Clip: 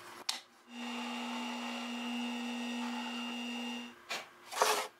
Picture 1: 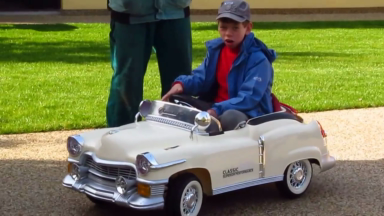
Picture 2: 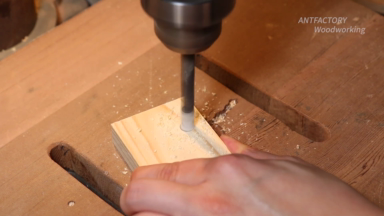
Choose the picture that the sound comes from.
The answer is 2